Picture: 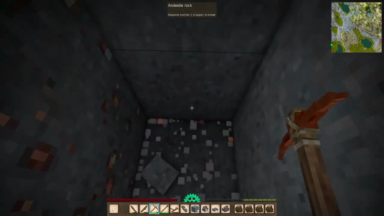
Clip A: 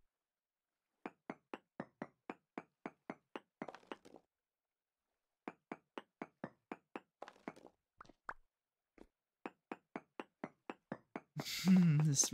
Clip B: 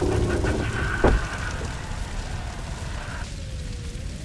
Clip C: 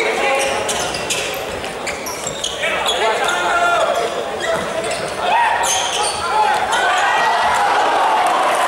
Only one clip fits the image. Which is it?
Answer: A